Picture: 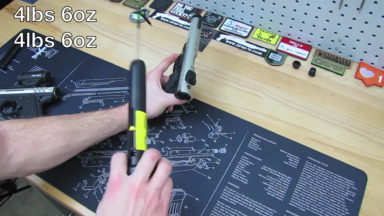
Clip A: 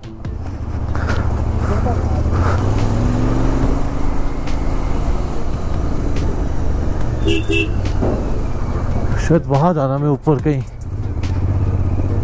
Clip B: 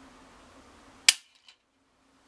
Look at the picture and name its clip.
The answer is B